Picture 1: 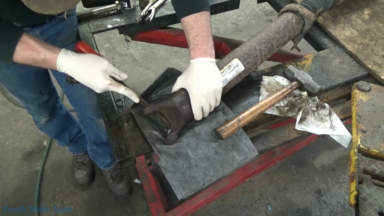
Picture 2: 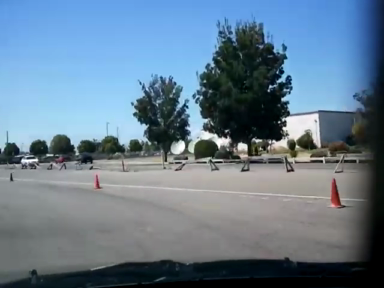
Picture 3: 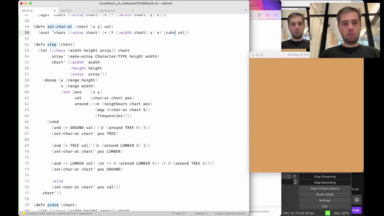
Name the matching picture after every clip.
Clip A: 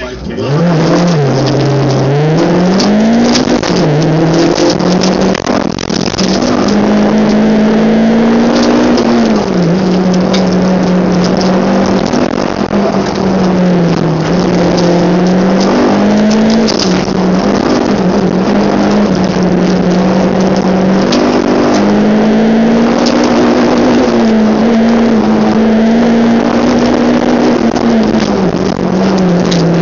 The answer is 2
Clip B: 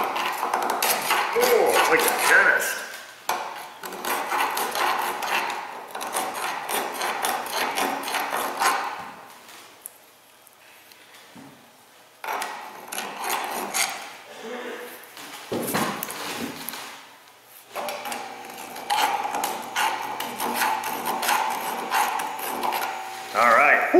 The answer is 1